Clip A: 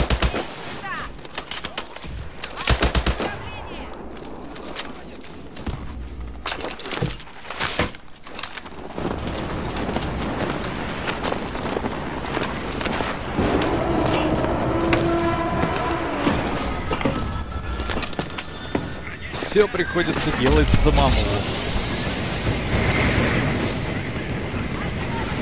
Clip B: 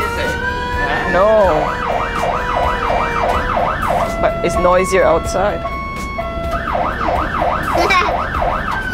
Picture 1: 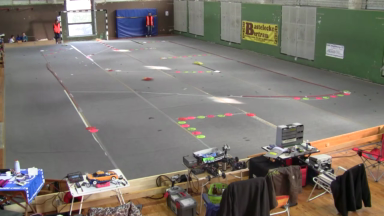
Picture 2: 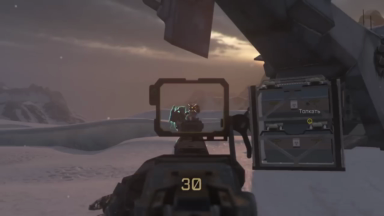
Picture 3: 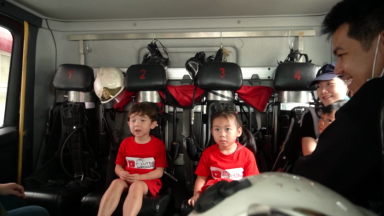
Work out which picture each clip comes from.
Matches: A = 2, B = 3